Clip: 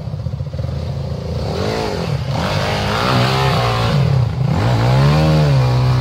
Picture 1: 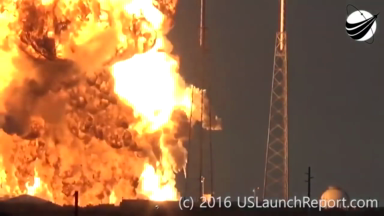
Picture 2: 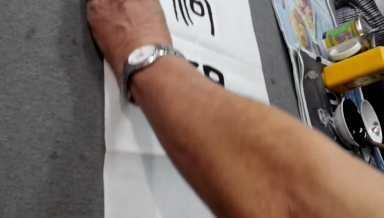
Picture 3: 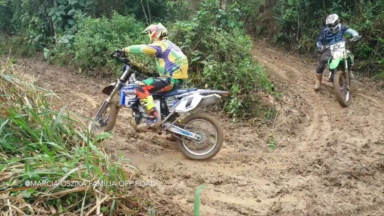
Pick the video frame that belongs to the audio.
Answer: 3